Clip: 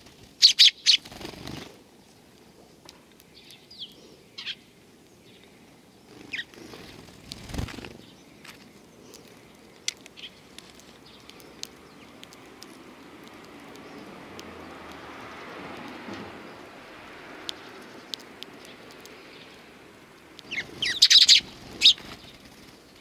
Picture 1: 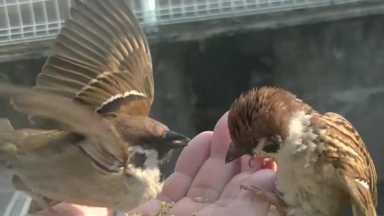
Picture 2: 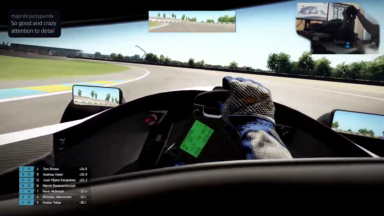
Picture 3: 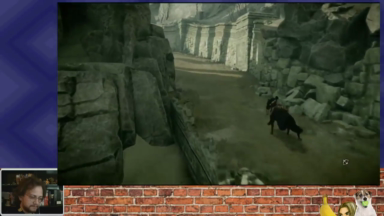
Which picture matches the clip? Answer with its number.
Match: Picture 1